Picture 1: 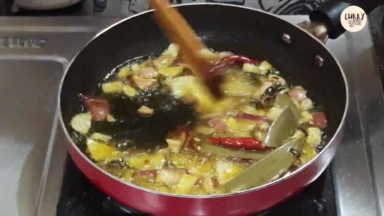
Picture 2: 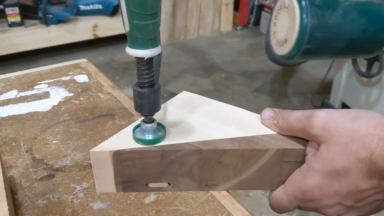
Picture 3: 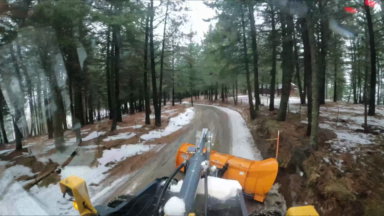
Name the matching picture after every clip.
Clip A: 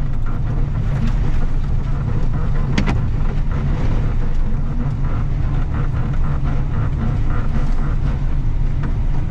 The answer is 3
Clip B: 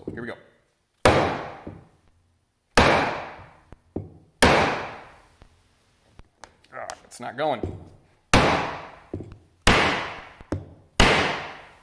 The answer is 2